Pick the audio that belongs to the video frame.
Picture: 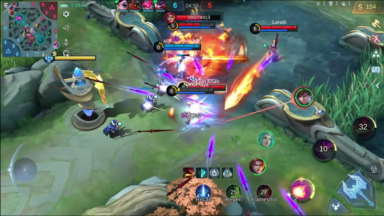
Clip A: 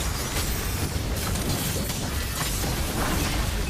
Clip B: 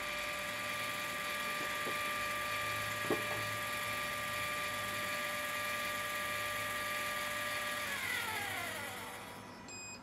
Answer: A